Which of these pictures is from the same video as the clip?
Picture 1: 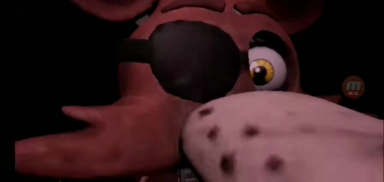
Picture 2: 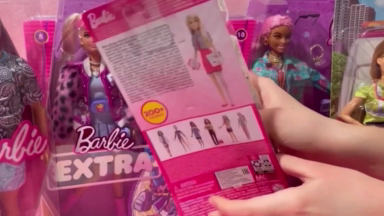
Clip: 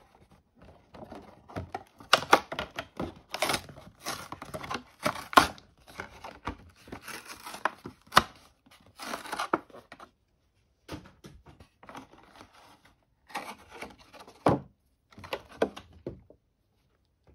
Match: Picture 2